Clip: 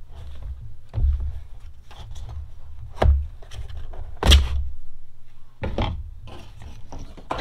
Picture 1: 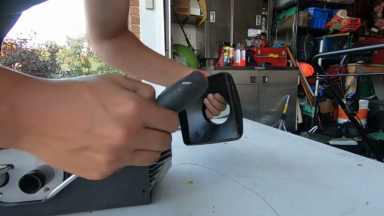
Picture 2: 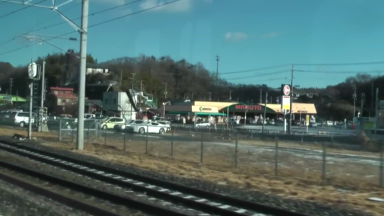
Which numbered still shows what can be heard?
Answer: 1